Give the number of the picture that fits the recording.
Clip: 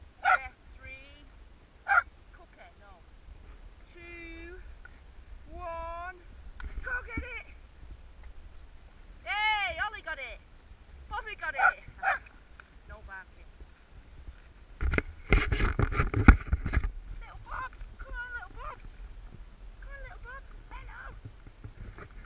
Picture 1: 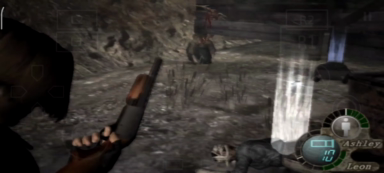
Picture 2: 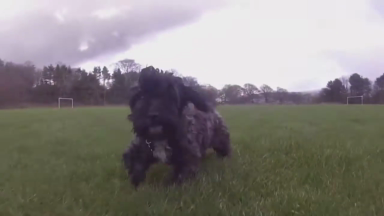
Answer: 2